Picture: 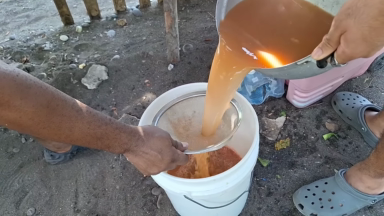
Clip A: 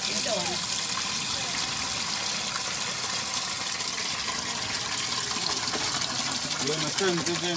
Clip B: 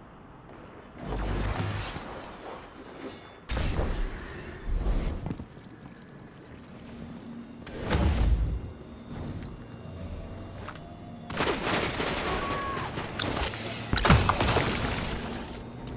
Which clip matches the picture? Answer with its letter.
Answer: A